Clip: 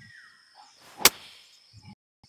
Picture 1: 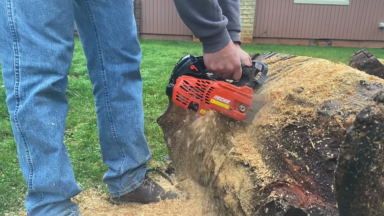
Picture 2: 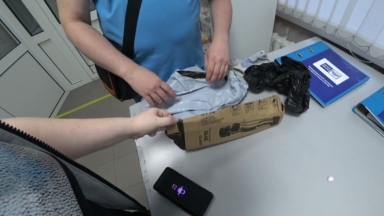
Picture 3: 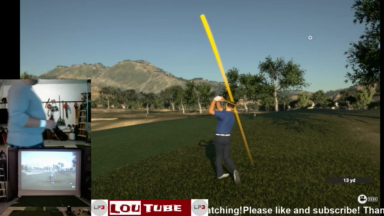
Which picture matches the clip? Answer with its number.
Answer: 3